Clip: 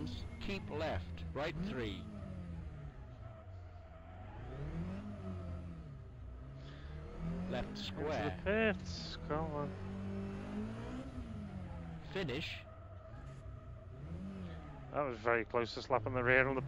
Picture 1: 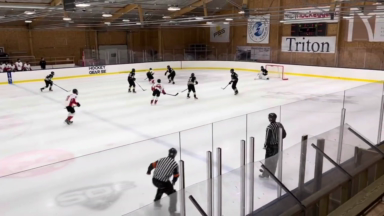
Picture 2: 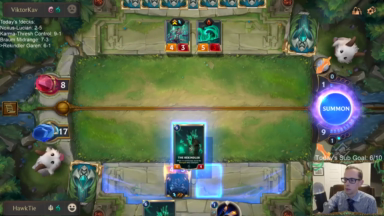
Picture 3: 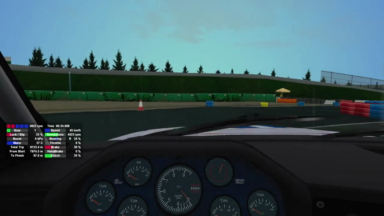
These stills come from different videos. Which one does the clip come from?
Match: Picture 3